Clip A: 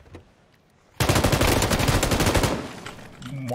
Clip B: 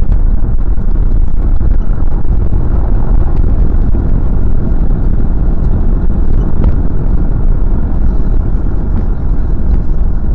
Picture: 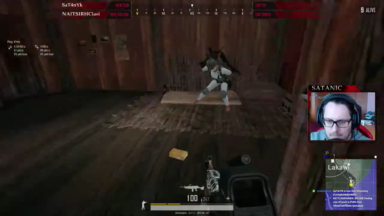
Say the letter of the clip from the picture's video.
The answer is A